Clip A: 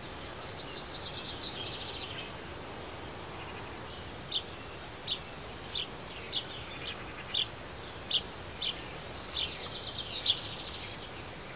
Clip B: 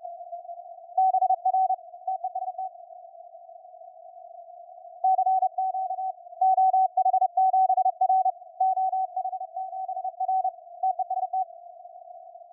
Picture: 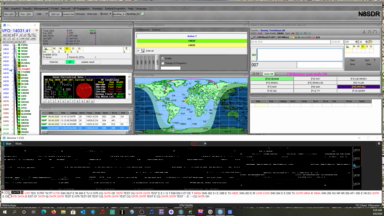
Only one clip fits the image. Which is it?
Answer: B